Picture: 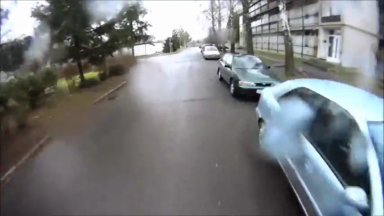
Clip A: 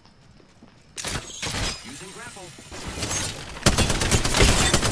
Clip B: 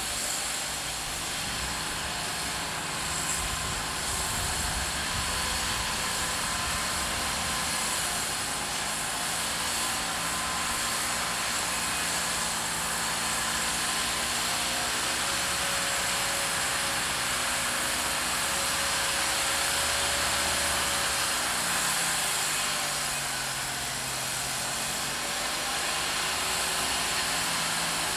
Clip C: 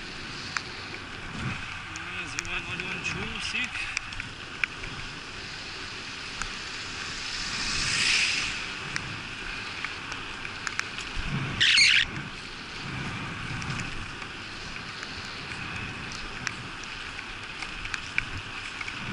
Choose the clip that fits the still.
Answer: C